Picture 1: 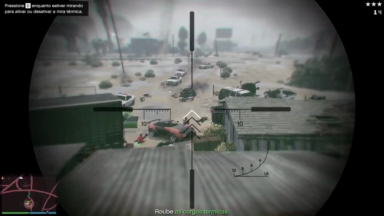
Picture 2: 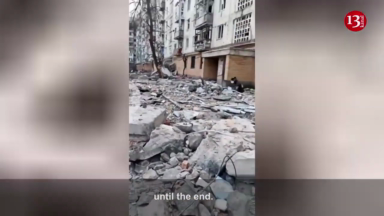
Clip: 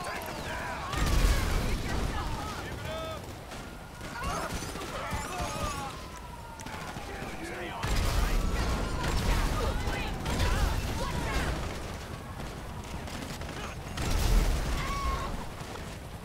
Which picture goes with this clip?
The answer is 1